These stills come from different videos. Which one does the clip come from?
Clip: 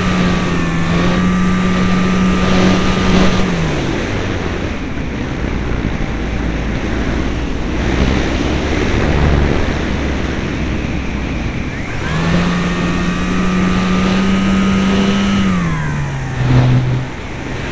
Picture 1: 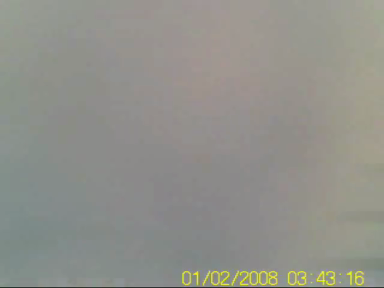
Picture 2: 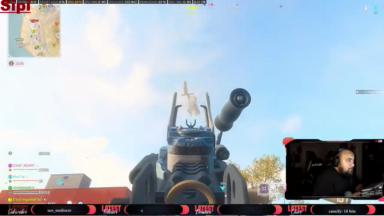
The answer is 1